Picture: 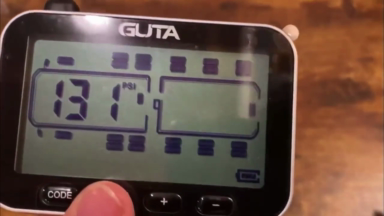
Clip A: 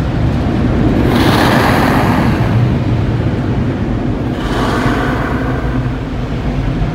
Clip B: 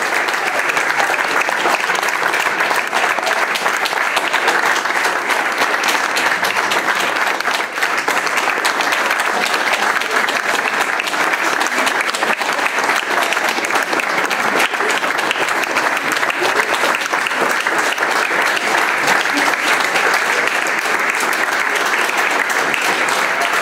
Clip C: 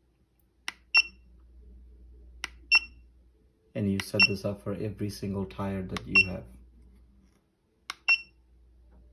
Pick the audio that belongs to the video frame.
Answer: C